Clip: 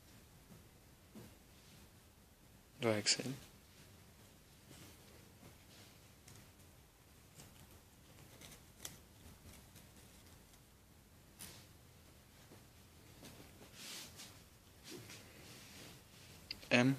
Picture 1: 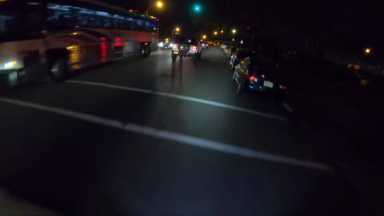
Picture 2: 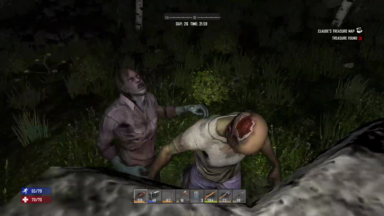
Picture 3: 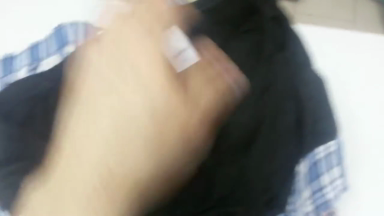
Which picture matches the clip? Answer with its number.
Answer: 3